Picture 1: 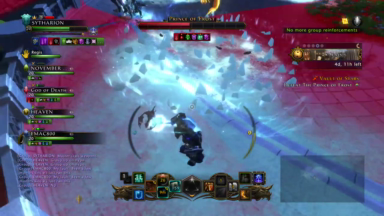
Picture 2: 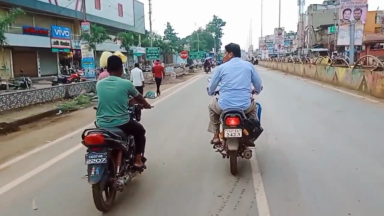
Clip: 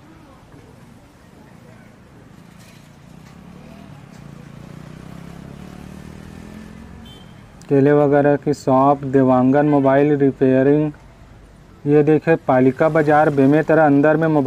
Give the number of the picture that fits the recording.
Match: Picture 2